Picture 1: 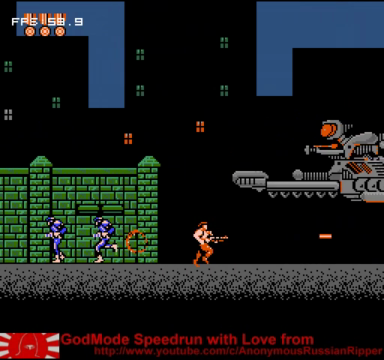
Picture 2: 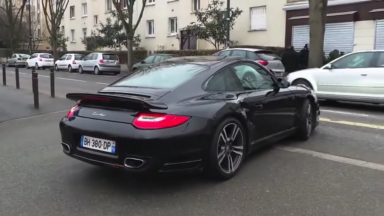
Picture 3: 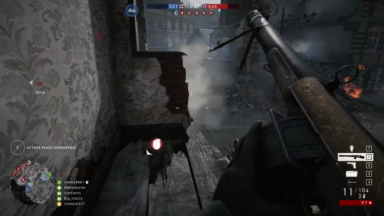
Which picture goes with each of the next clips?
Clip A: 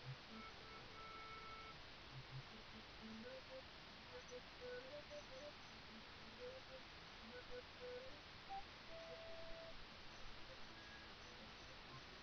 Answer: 1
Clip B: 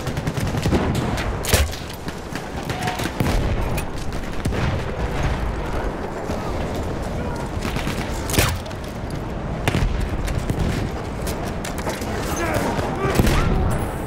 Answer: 3